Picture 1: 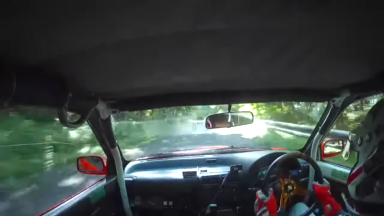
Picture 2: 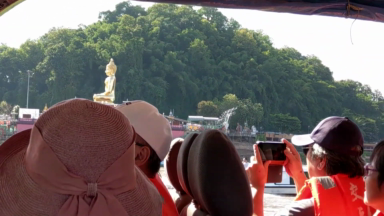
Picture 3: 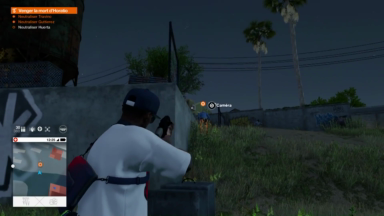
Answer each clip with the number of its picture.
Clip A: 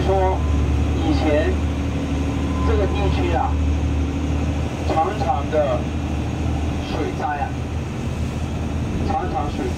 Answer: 2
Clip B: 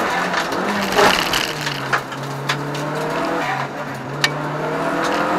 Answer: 1